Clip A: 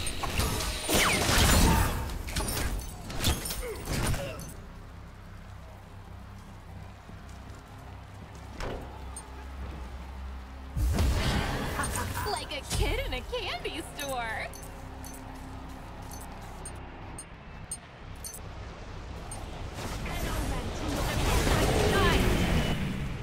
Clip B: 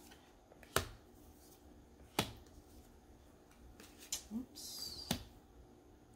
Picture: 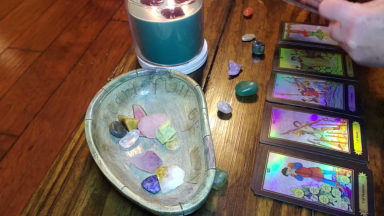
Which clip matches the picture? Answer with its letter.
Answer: B